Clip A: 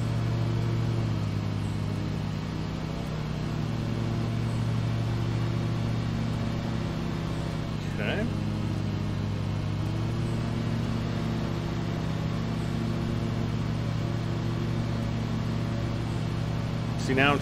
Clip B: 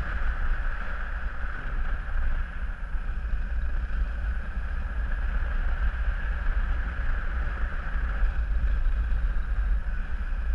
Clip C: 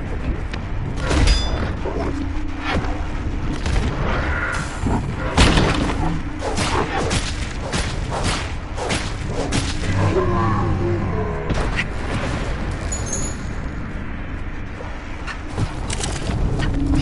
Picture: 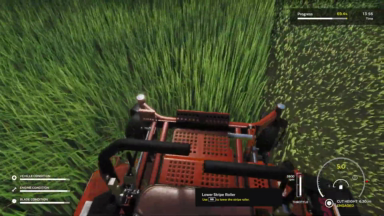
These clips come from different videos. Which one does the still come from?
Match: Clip A